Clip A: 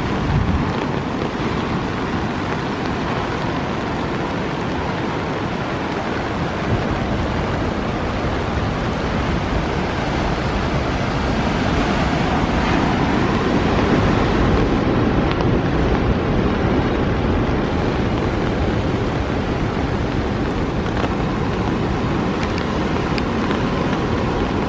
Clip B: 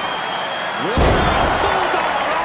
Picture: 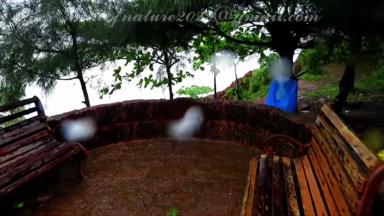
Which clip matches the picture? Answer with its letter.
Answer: A